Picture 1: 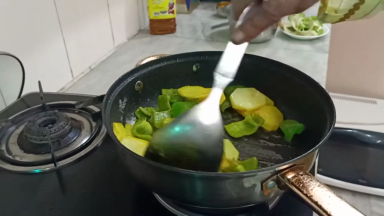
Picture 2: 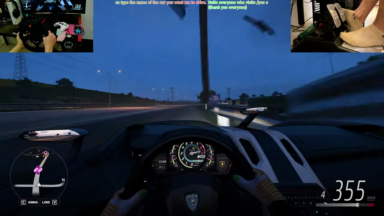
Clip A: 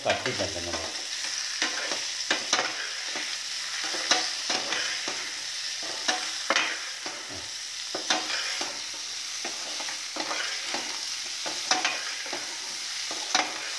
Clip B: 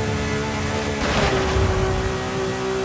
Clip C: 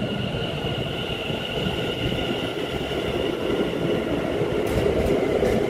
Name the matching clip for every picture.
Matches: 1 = A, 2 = B